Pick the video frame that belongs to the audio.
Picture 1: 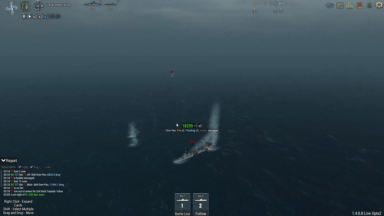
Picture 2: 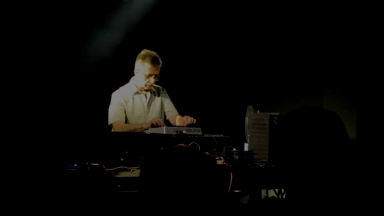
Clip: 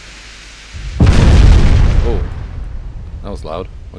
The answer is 1